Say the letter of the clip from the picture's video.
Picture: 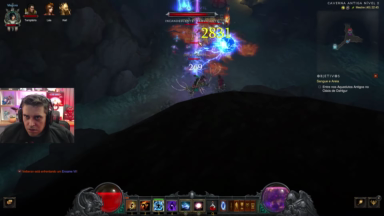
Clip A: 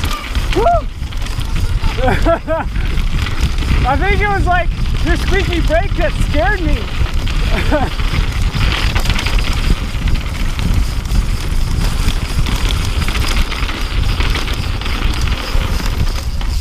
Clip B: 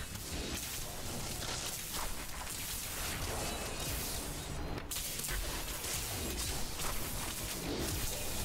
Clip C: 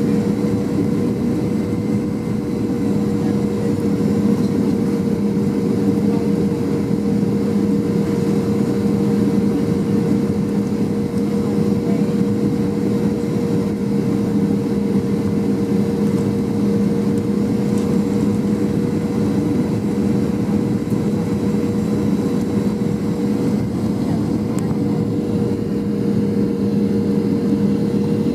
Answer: B